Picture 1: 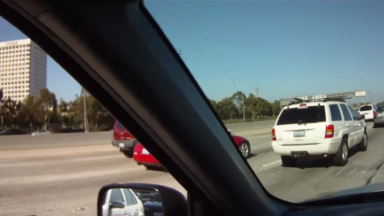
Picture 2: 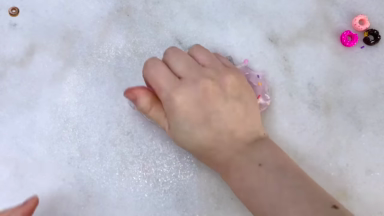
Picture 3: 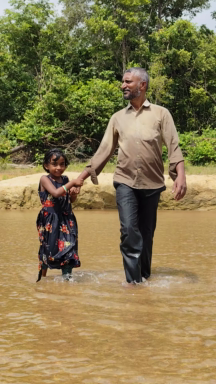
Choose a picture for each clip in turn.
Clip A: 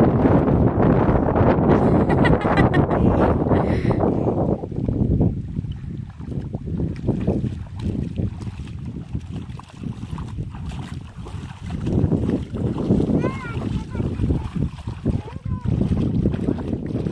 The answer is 3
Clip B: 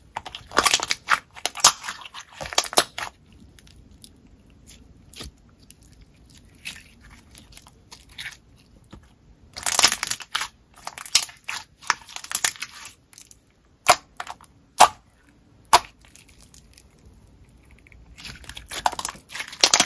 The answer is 2